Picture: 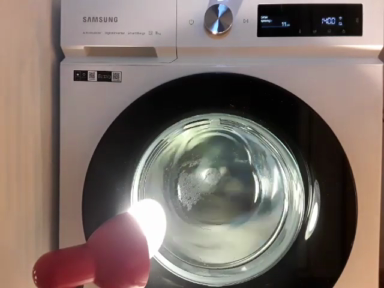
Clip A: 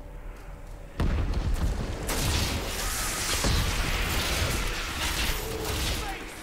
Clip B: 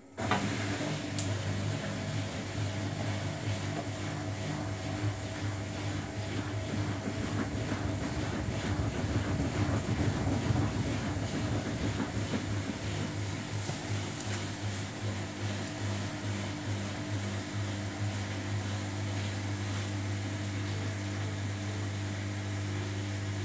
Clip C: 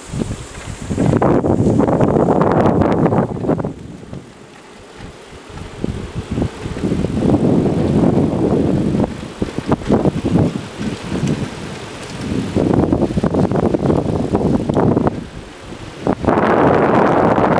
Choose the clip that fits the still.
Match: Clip B